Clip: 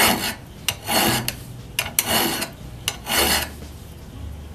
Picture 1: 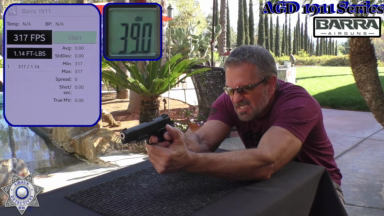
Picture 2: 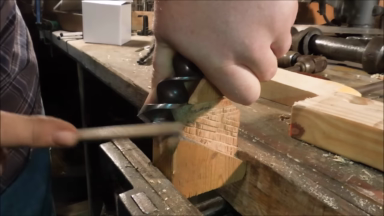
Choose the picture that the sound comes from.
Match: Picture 2